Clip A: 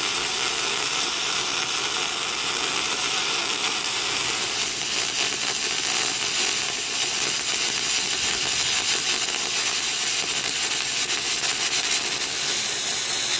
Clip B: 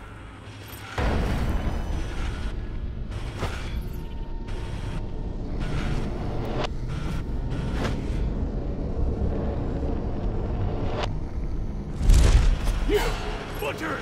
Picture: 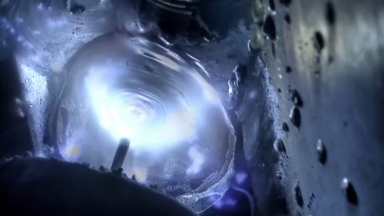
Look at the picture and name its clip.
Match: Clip A